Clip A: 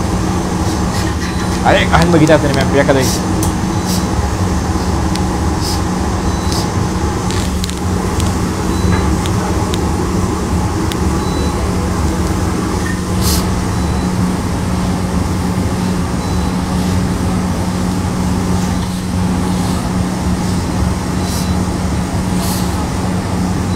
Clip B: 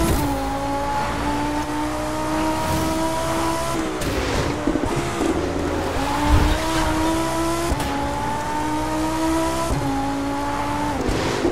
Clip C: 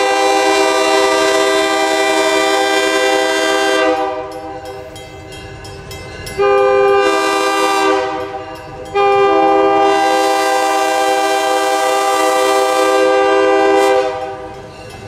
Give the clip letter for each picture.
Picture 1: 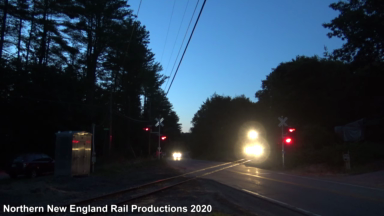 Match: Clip C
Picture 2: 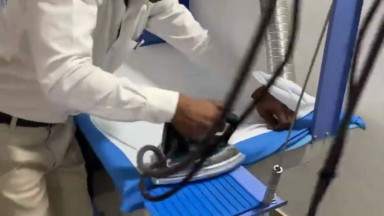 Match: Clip A